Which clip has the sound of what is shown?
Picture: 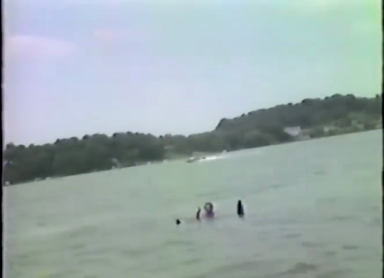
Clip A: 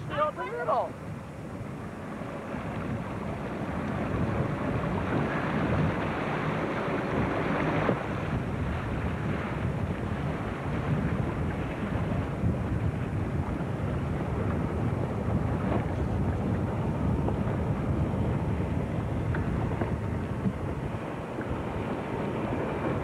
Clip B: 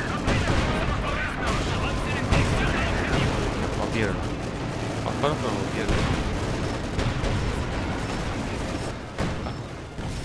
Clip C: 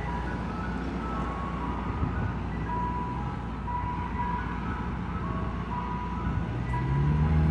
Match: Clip A